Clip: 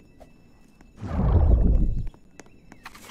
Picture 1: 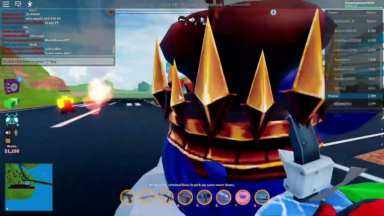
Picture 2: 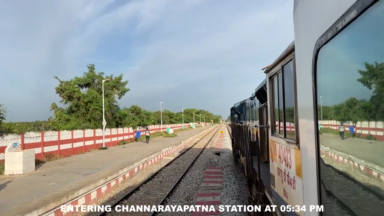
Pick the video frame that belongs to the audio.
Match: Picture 1